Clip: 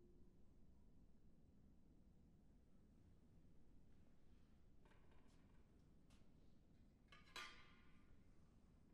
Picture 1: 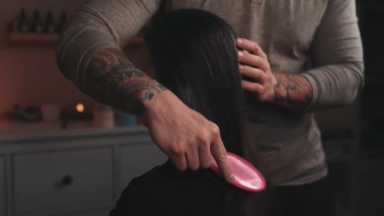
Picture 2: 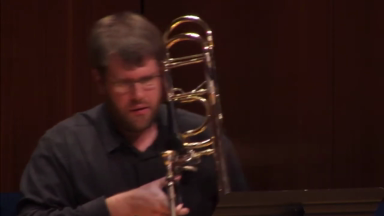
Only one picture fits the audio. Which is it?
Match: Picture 2